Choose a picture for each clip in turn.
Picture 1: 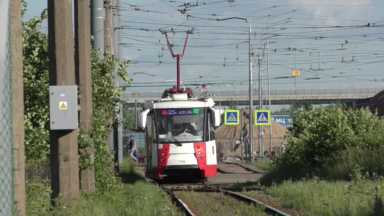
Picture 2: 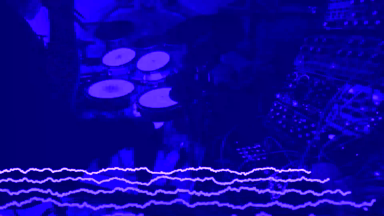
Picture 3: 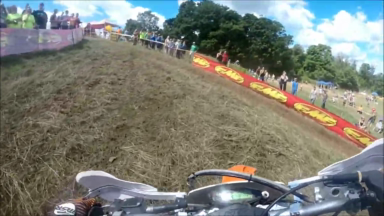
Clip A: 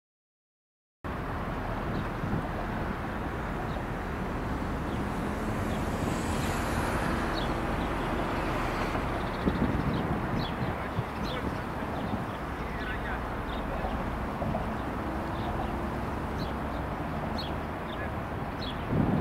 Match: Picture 1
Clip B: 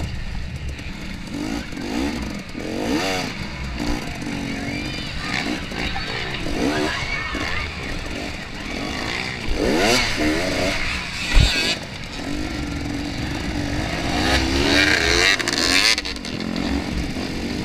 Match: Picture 3